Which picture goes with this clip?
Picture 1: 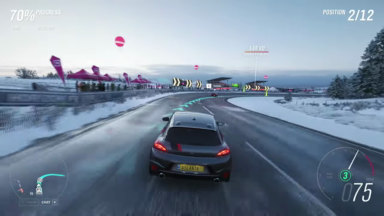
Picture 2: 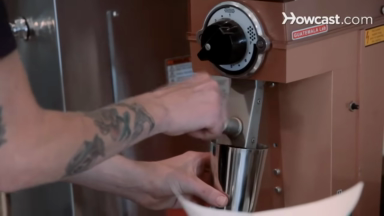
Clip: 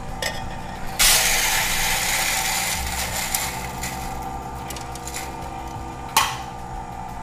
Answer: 2